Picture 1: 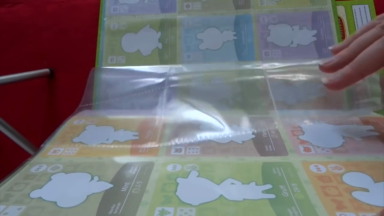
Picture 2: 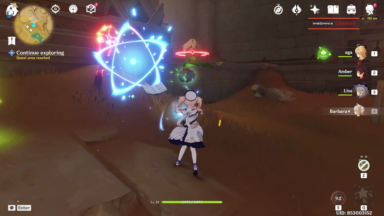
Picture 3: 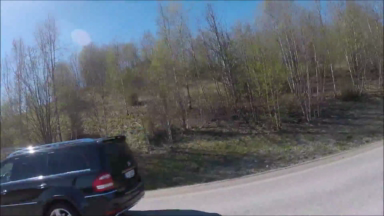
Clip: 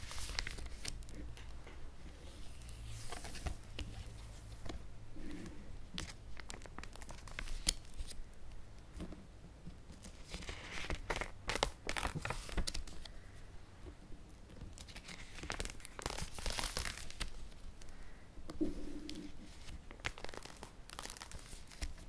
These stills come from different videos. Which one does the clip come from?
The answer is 1